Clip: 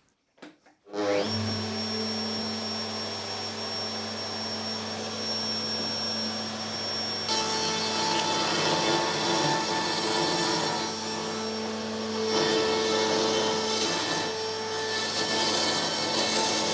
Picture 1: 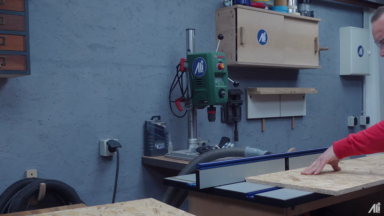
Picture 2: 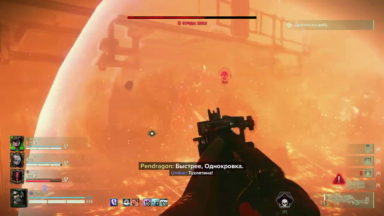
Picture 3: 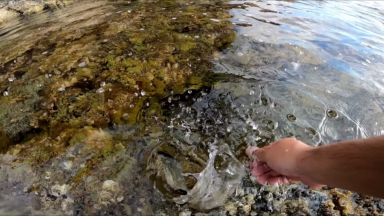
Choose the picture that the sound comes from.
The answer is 1